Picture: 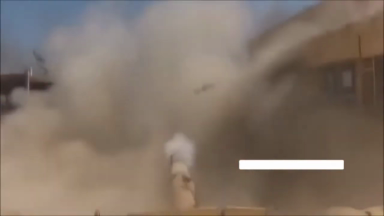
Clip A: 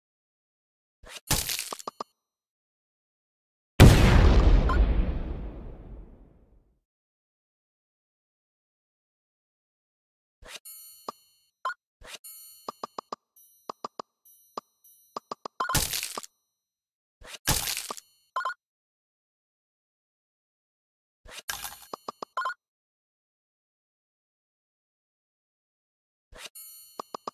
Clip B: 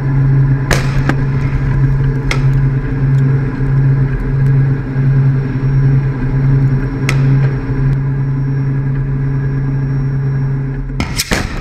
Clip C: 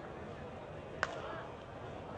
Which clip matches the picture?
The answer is B